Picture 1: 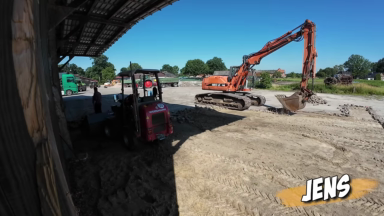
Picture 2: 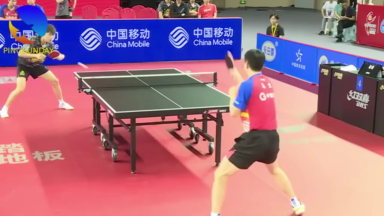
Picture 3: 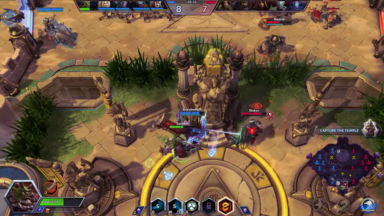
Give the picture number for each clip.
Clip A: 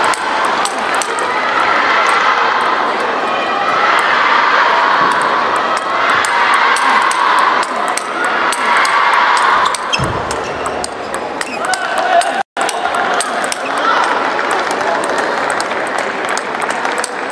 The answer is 2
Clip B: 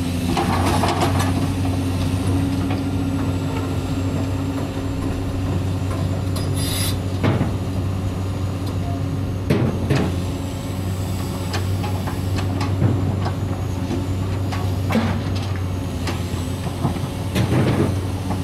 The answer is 1